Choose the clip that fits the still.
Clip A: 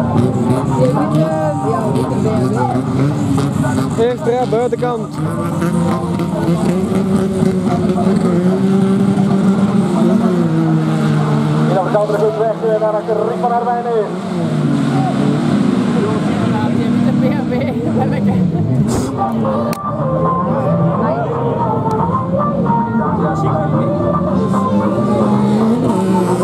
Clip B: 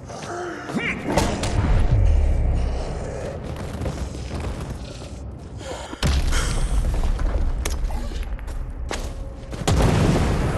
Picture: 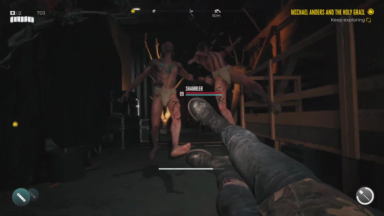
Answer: B